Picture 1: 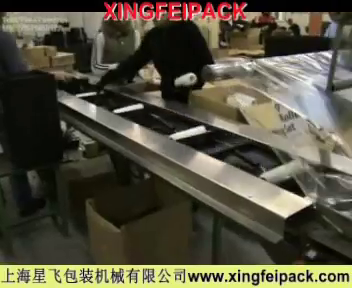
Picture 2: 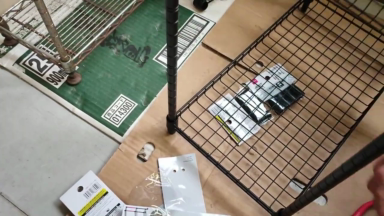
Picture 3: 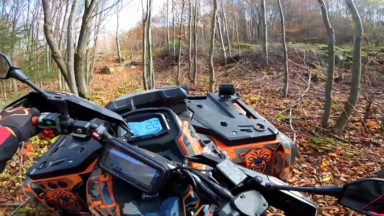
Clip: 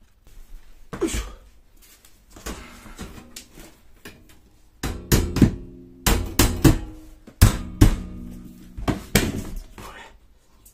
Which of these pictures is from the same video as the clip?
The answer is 2